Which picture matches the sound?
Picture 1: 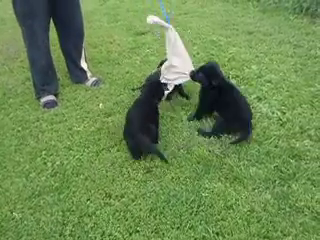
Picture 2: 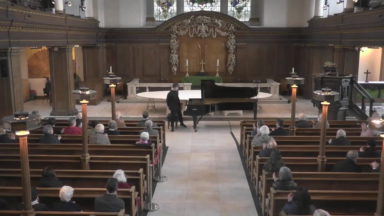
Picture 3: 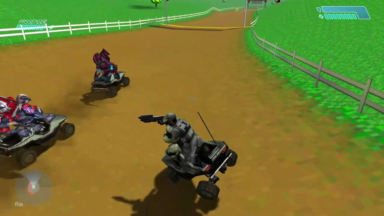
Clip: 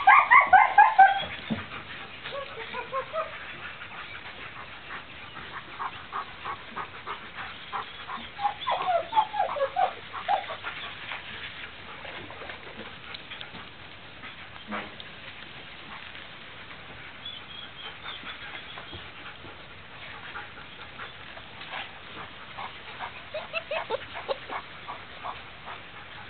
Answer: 1